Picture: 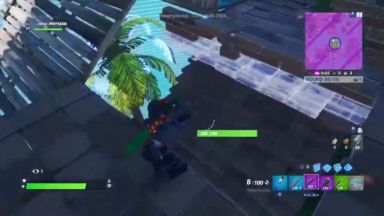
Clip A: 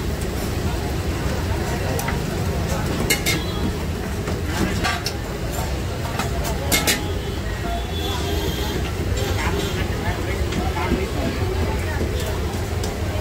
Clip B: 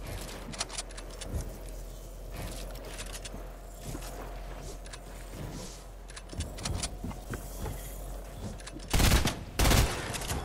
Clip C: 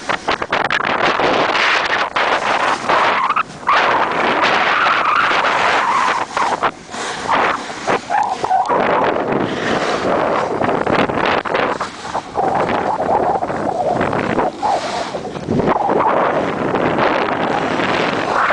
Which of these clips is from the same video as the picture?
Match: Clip B